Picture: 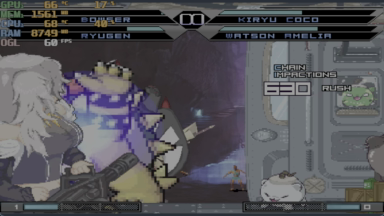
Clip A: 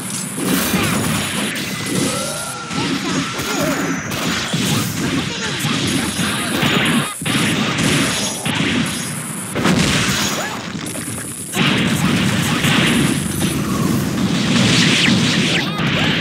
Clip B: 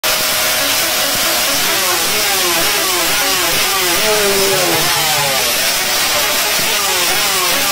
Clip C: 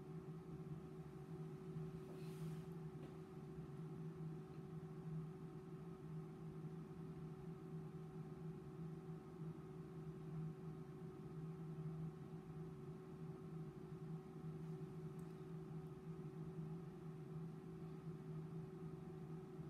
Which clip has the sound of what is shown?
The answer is A